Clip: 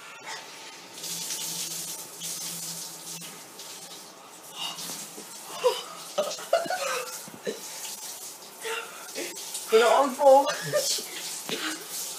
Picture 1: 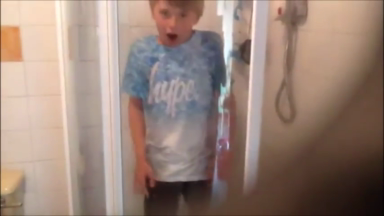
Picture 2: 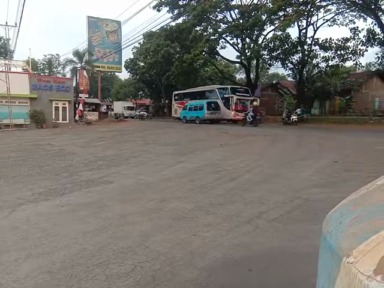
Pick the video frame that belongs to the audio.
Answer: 1